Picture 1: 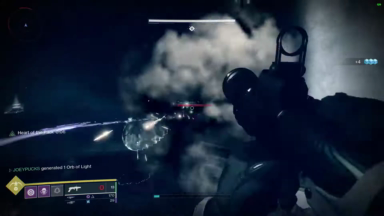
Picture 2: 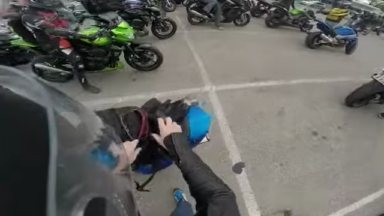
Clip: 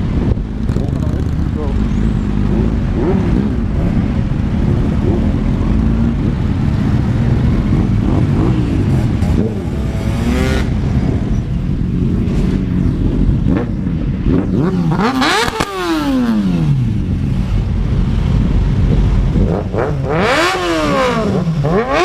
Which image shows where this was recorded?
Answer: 2